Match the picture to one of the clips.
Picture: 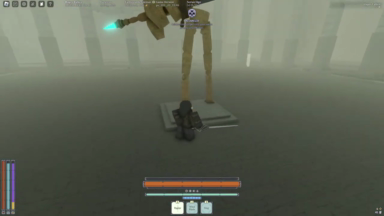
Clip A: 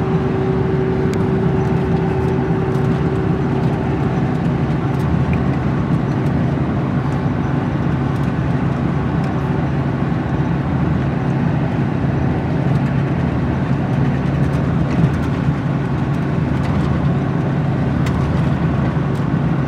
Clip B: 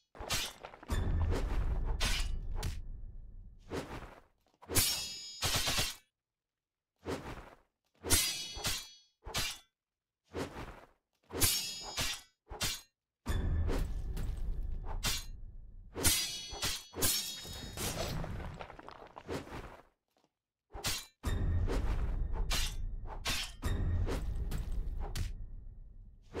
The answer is B